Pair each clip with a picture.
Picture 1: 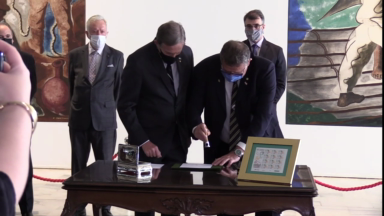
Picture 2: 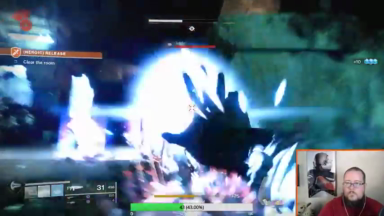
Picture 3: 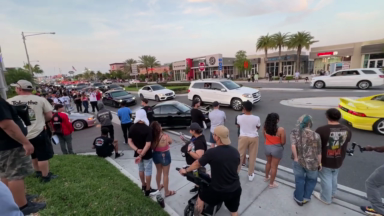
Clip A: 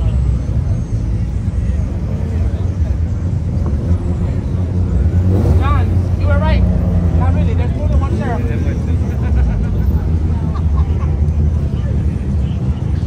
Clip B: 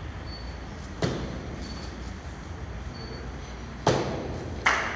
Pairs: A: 3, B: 1